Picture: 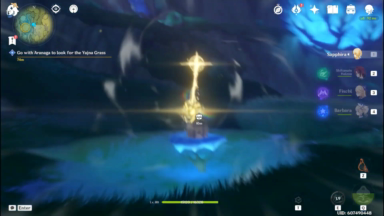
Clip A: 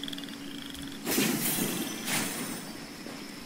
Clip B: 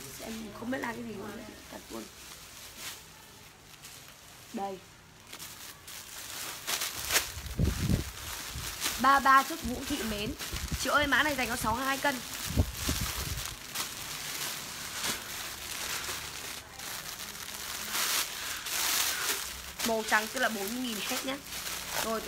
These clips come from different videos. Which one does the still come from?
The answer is A